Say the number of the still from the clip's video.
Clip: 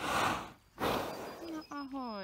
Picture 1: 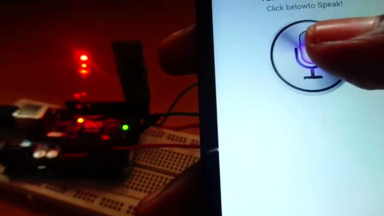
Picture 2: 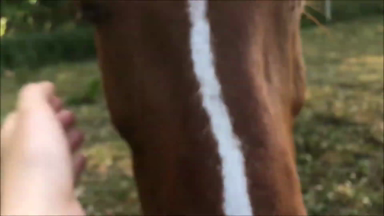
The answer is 2